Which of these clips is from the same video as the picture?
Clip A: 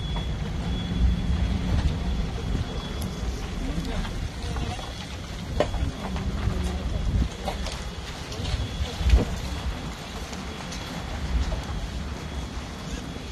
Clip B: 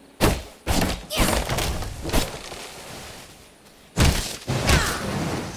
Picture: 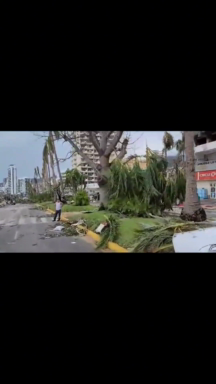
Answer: A